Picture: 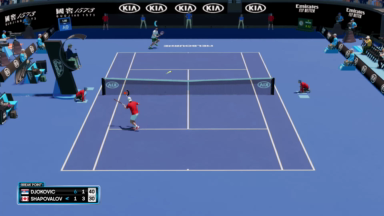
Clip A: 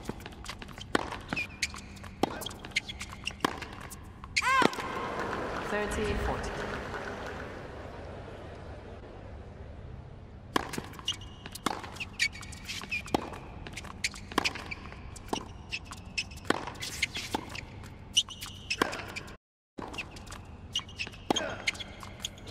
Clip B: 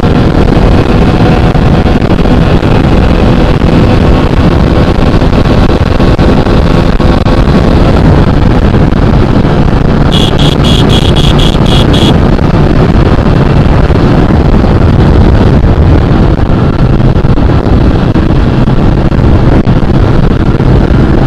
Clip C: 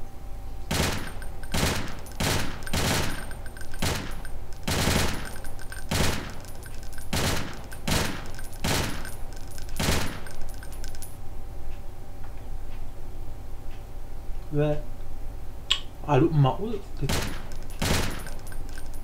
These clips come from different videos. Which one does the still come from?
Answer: A